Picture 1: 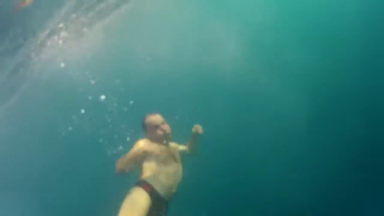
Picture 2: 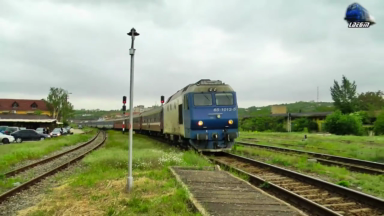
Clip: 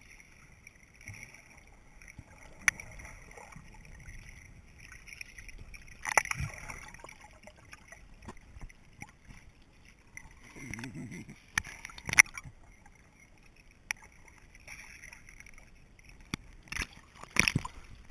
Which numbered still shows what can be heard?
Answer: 1